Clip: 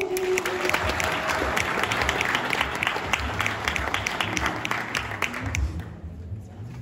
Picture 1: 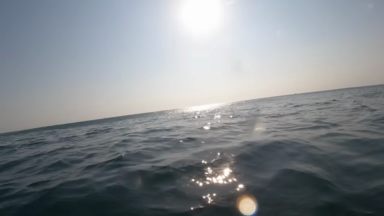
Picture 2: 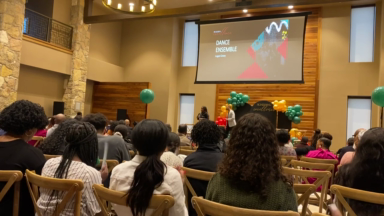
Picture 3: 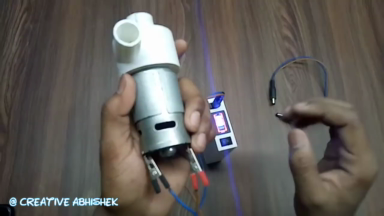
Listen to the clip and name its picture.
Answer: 2